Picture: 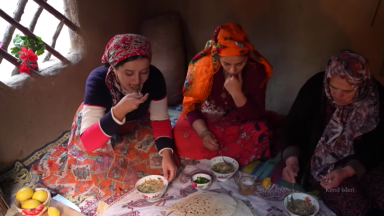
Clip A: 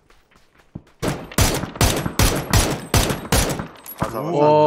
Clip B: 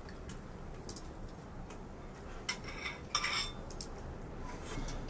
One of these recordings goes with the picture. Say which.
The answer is B